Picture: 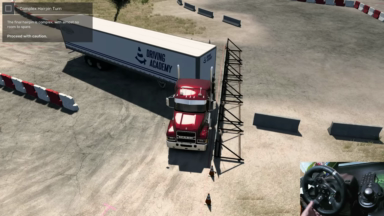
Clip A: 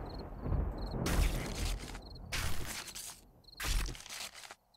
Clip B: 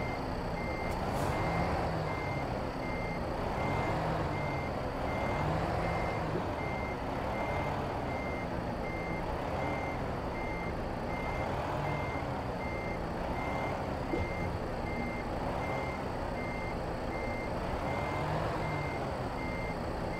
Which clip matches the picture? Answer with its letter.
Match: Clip B